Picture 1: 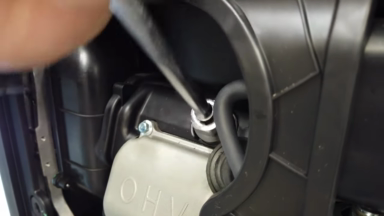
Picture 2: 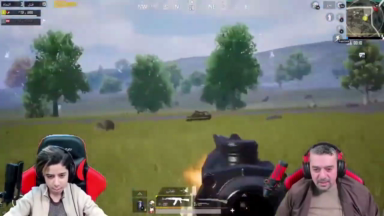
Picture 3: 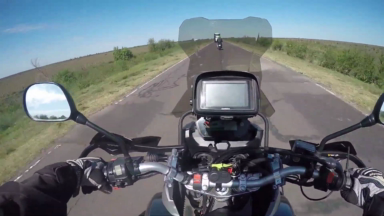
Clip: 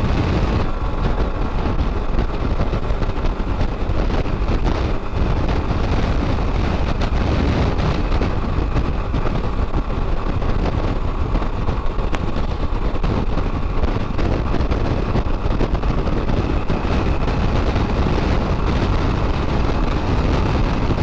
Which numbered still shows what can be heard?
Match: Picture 3